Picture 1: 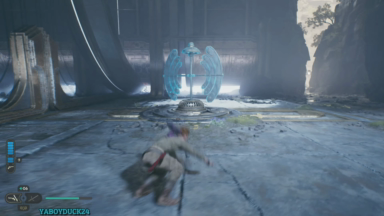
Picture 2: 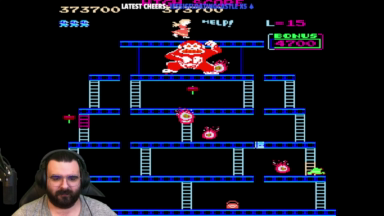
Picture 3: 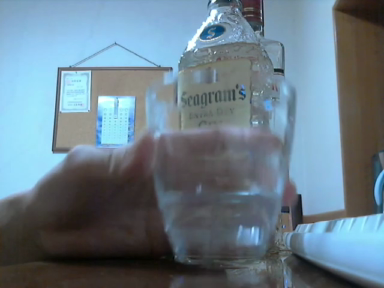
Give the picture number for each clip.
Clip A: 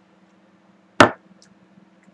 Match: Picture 3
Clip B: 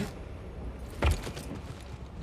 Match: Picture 1